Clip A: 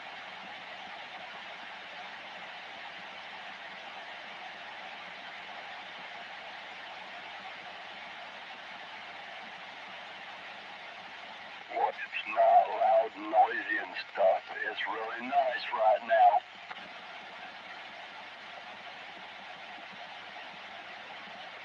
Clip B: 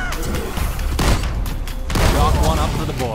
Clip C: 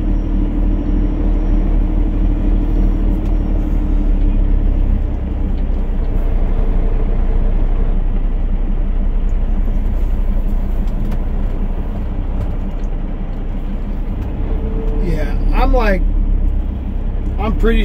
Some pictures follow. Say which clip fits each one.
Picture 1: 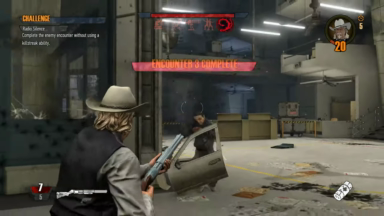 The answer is B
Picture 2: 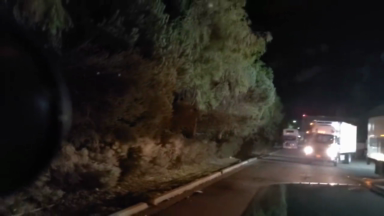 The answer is C